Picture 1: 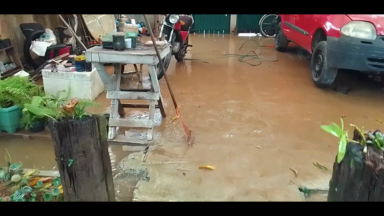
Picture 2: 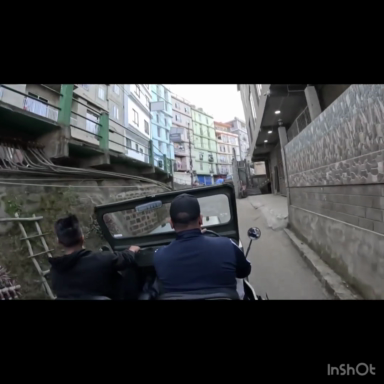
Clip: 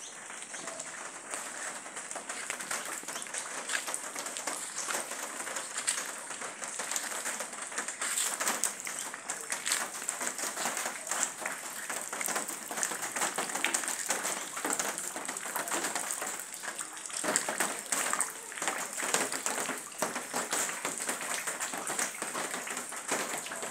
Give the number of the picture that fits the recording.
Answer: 1